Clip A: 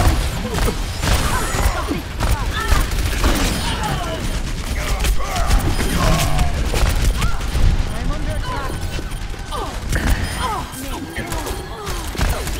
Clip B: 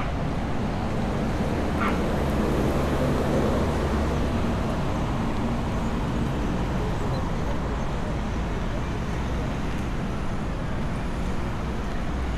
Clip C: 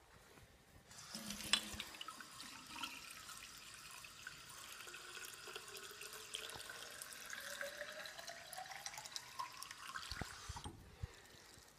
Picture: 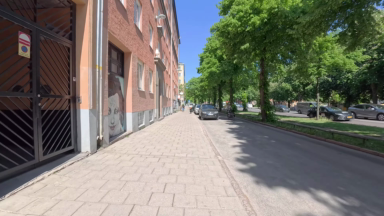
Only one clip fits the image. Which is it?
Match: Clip B